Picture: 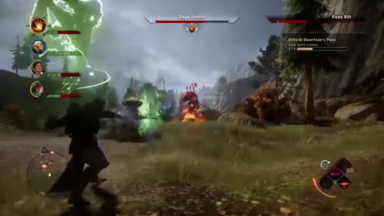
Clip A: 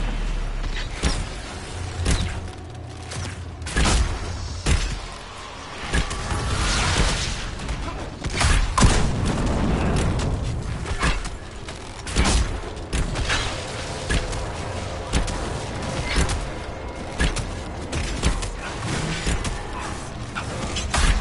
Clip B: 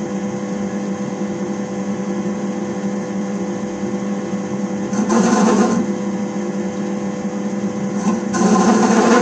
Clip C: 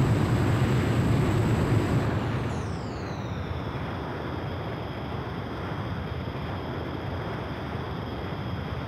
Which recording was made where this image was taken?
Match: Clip A